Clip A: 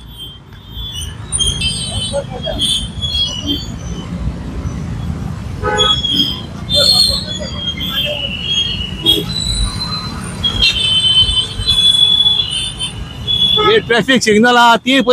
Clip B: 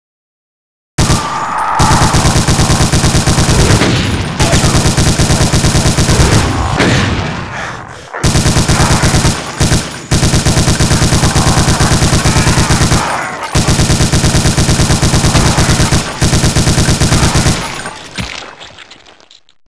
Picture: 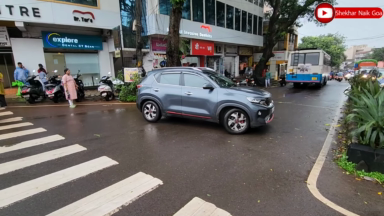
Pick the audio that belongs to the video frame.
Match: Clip A